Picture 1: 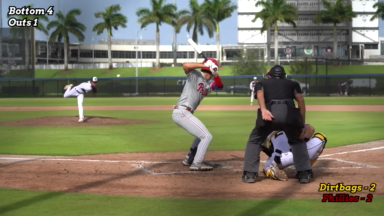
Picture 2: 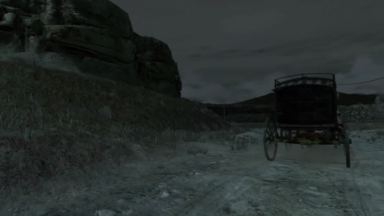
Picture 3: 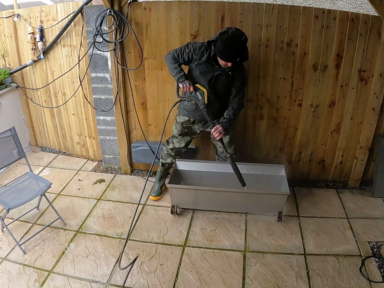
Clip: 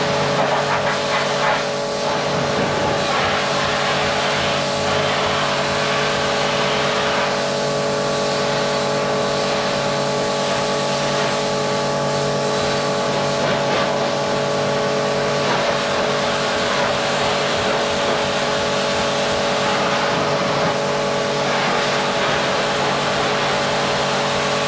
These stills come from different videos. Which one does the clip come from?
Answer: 3